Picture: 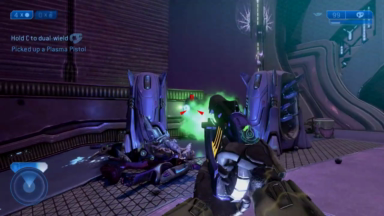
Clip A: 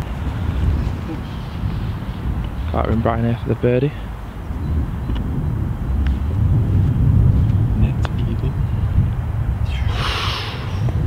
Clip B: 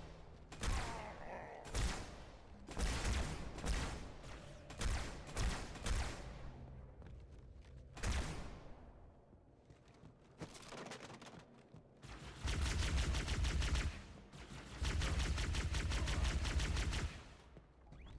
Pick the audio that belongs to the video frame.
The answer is B